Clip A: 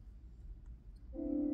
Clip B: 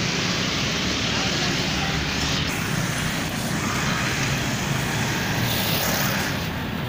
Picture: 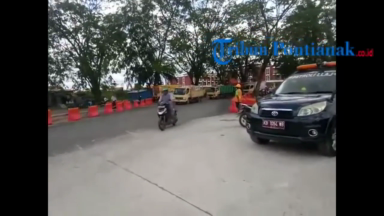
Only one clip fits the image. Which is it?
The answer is B